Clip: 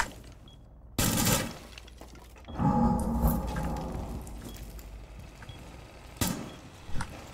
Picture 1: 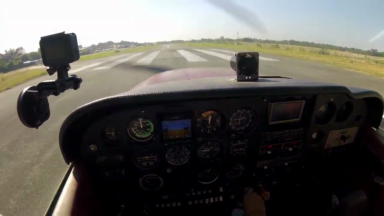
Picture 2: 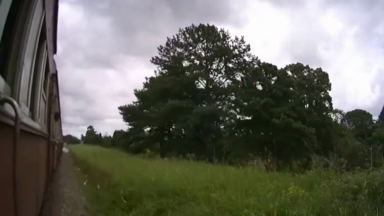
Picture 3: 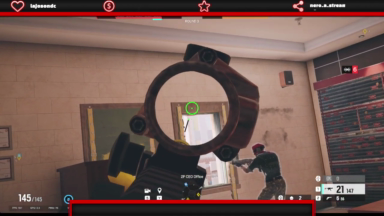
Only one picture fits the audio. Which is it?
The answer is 3